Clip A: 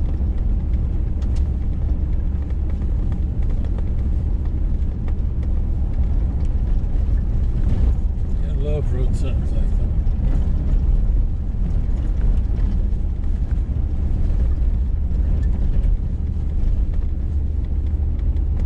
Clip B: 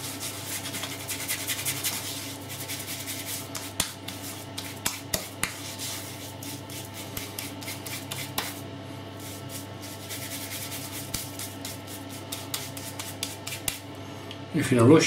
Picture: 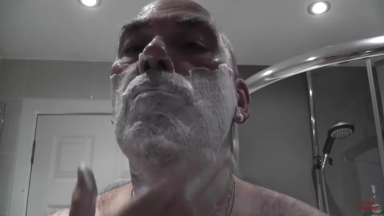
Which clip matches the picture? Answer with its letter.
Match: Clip B